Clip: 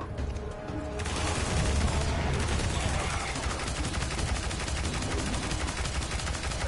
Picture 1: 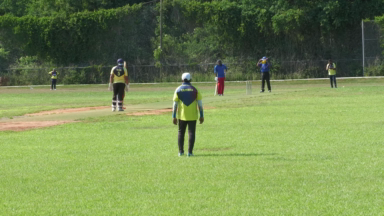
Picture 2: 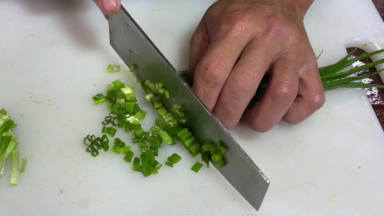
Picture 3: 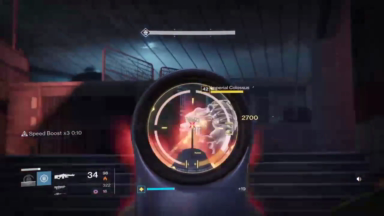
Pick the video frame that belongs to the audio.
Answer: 3